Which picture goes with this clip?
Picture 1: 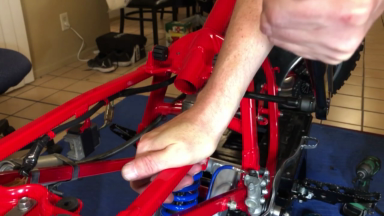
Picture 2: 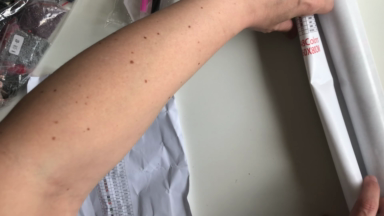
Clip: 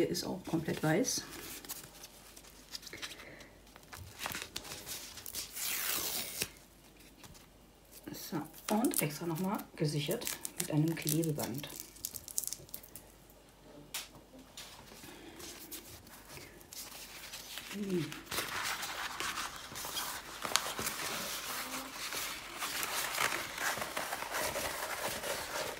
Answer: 2